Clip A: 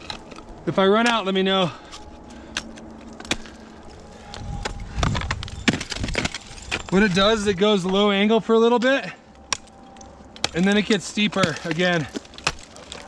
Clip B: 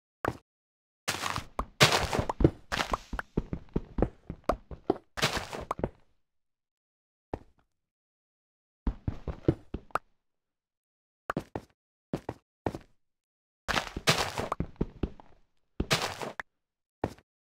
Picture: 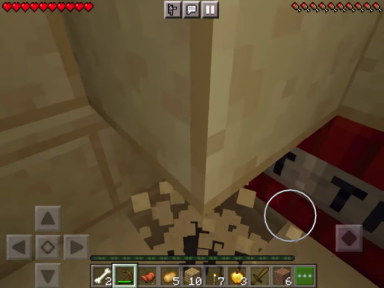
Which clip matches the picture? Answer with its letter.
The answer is B